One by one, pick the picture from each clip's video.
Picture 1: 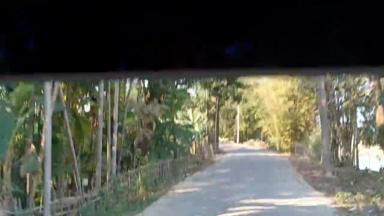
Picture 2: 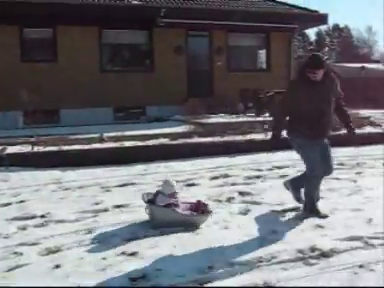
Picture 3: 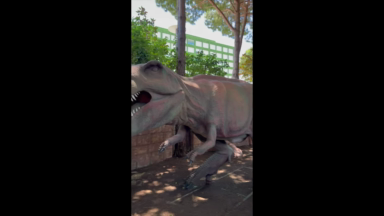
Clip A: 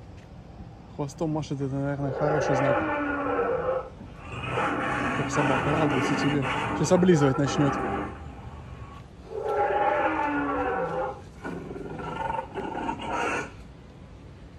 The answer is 3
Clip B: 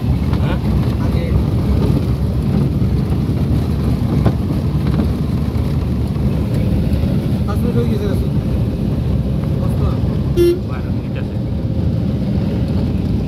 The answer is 1